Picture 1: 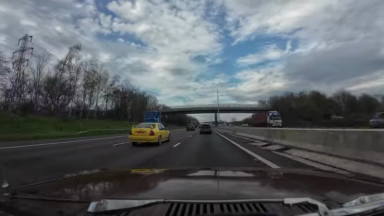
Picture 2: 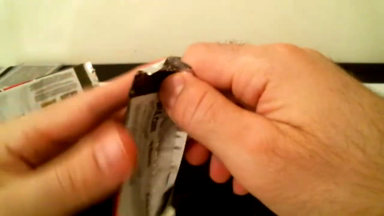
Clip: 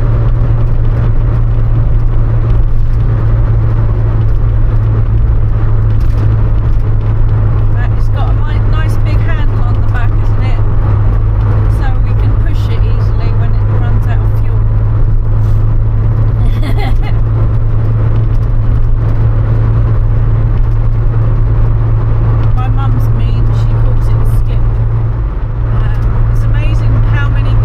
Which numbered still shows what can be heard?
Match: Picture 1